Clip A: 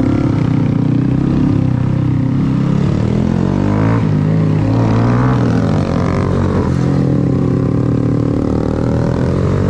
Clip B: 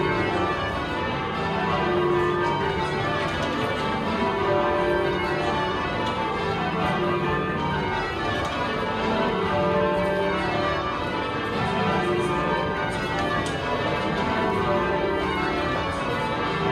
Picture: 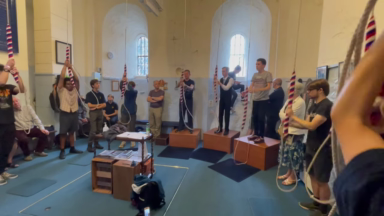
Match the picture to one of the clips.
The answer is B